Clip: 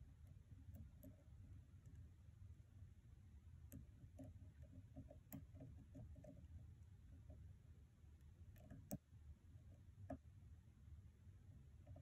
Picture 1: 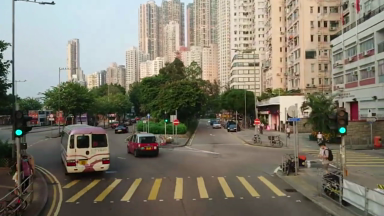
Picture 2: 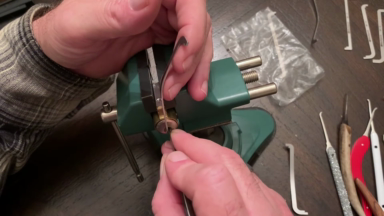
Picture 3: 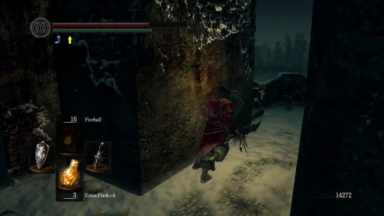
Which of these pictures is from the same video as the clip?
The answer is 2